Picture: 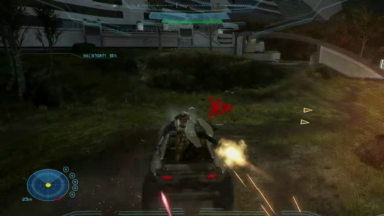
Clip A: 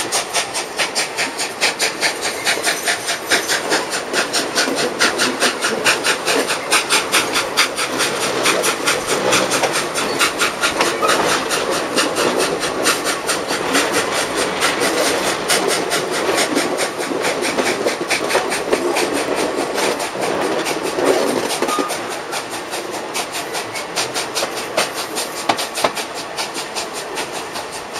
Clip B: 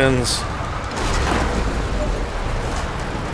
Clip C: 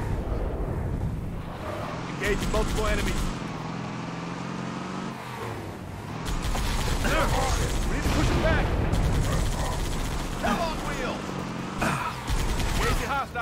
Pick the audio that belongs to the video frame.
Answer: C